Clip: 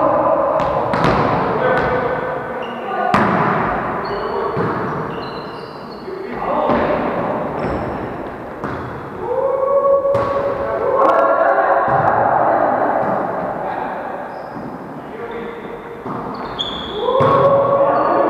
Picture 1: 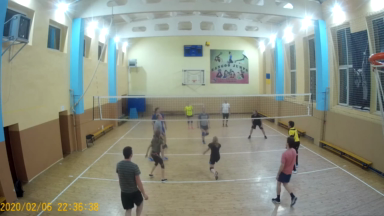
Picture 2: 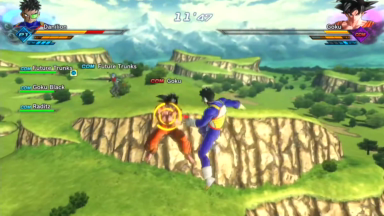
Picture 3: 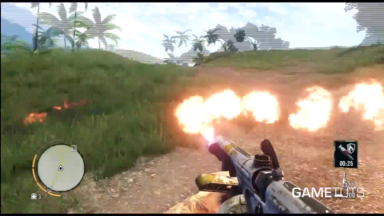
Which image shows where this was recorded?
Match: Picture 1